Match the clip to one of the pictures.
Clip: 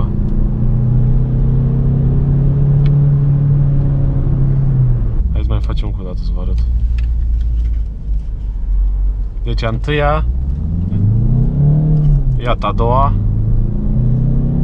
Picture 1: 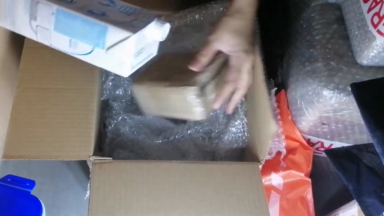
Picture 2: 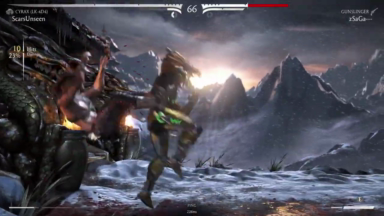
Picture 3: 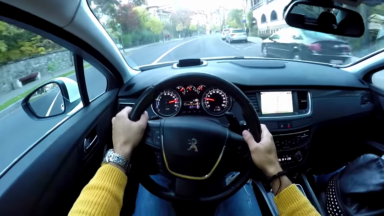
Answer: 3